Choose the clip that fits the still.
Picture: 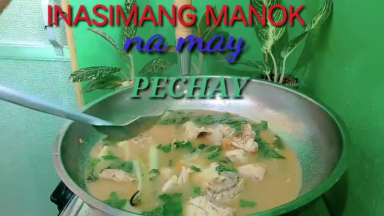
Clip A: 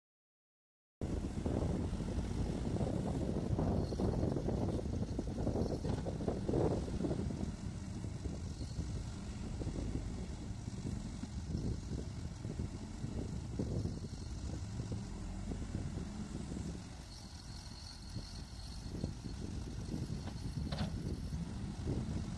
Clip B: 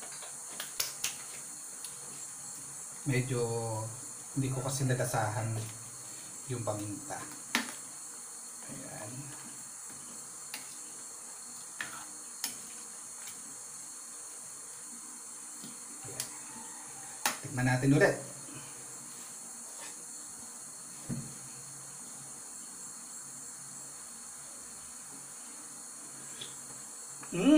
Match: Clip B